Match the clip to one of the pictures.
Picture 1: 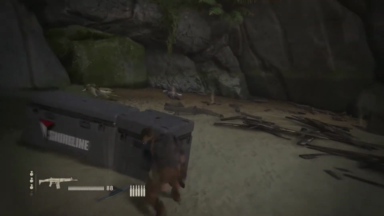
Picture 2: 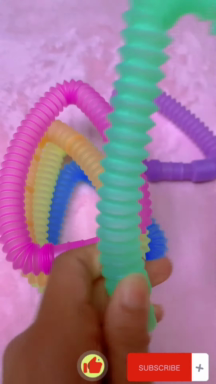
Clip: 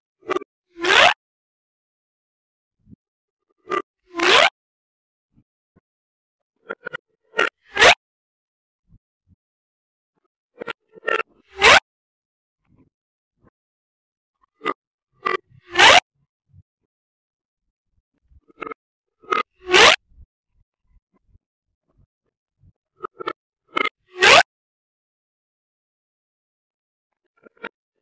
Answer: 2